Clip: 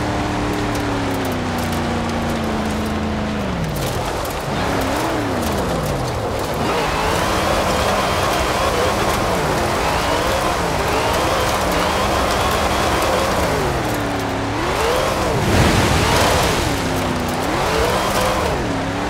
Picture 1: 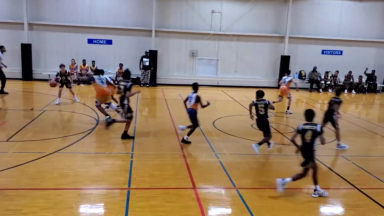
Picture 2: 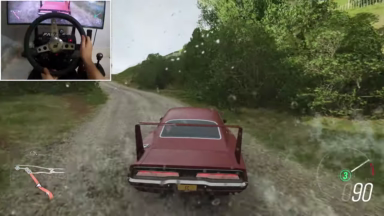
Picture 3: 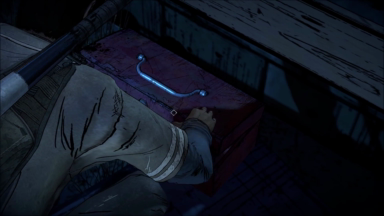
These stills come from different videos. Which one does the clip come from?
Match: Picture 2